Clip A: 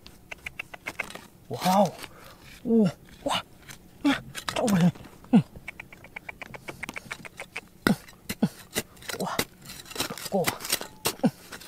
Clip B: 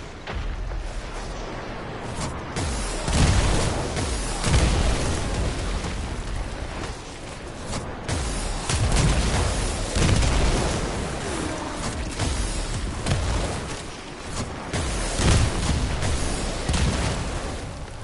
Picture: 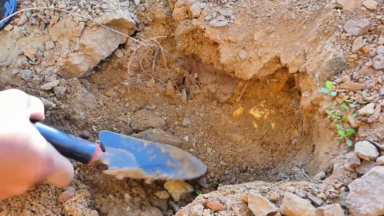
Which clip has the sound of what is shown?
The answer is A